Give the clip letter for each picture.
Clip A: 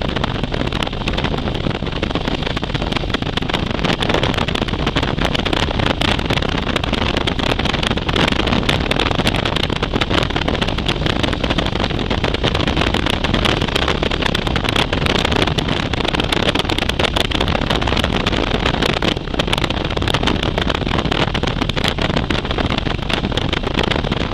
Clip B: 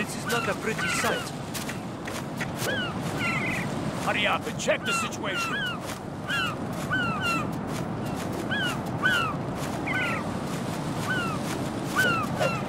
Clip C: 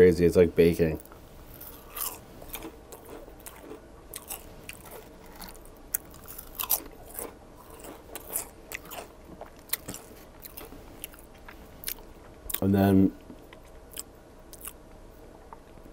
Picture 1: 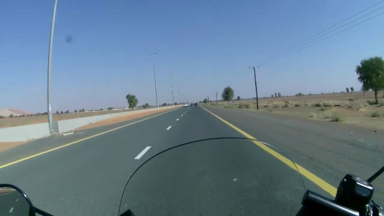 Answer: A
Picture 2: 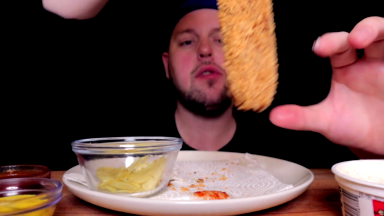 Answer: C